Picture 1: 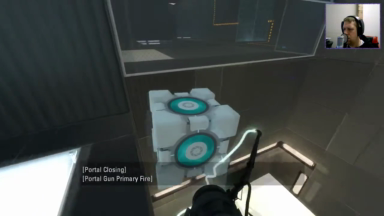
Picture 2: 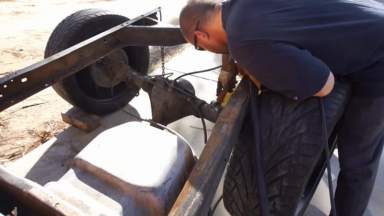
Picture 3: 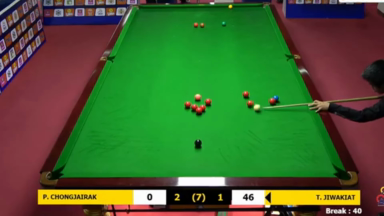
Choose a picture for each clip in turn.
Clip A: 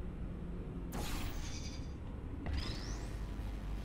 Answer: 1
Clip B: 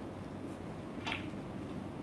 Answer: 3